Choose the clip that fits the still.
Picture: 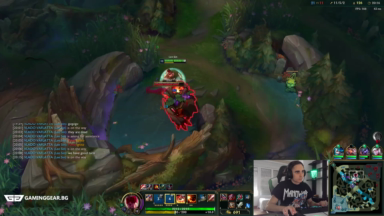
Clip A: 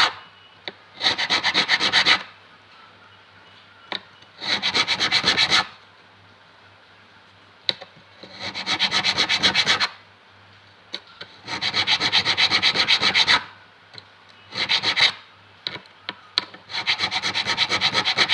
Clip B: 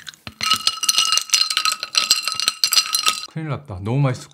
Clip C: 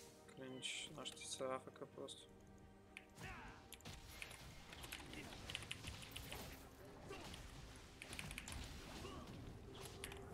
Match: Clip C